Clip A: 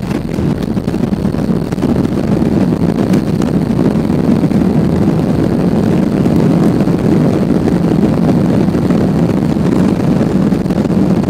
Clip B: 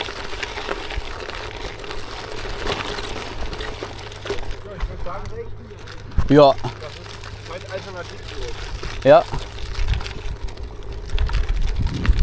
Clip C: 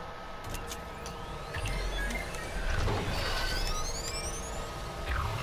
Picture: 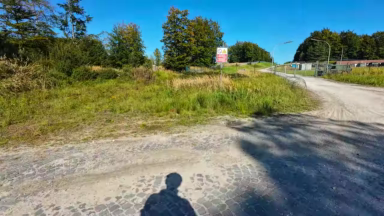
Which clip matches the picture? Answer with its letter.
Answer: B